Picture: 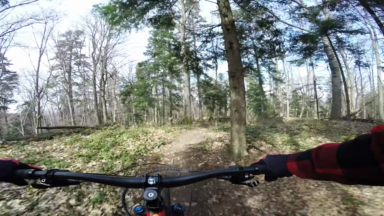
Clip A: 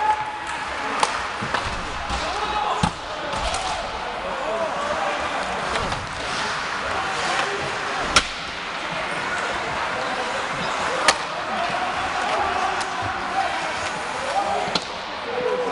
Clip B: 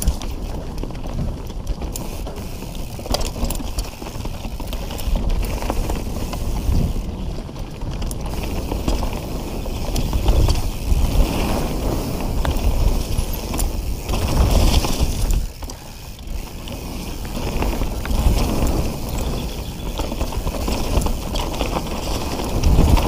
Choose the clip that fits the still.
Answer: B